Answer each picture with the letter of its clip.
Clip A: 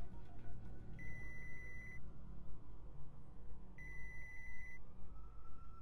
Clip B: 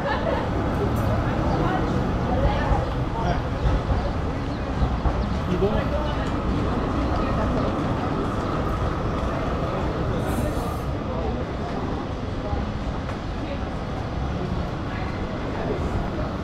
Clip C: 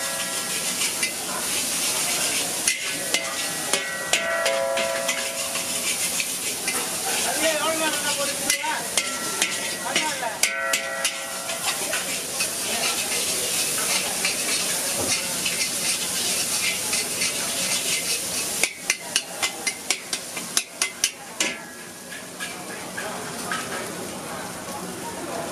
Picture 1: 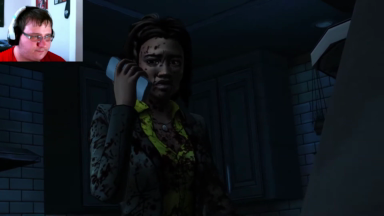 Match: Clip A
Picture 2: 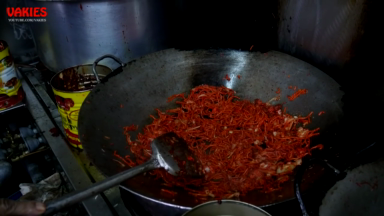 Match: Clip C